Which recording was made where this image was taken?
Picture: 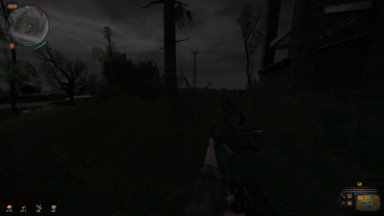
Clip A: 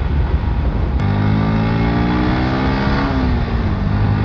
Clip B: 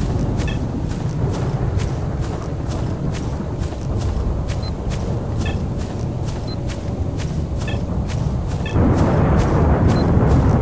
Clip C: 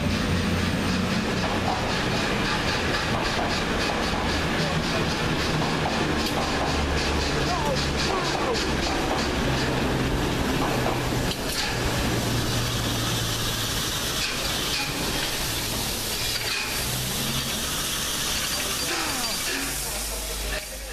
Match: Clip B